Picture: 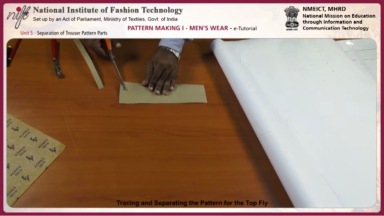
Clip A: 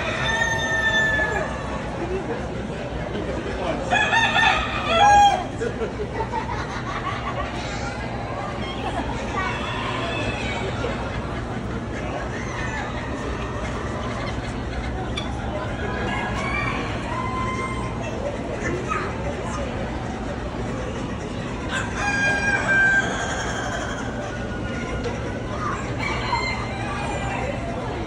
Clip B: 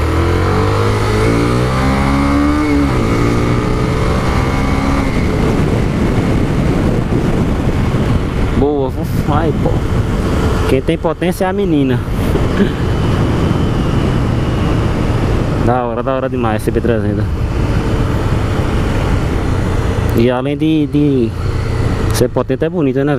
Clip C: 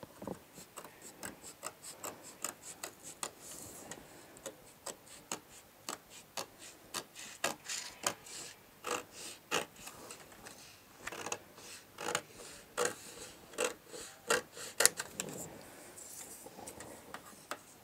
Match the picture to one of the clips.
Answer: C